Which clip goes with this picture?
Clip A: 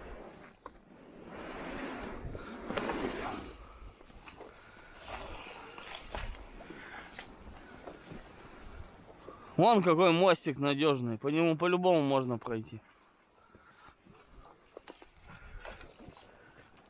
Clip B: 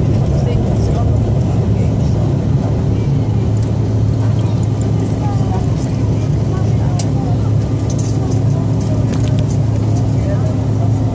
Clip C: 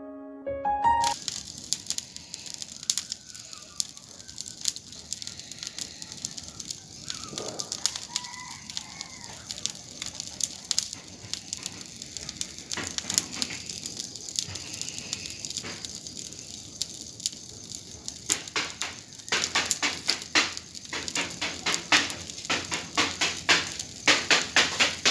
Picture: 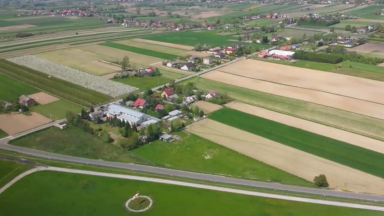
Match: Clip B